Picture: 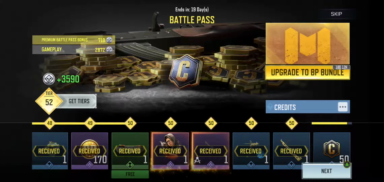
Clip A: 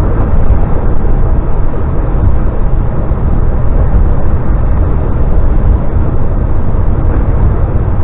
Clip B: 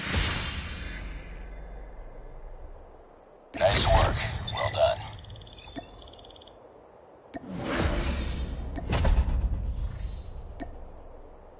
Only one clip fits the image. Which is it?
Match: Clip B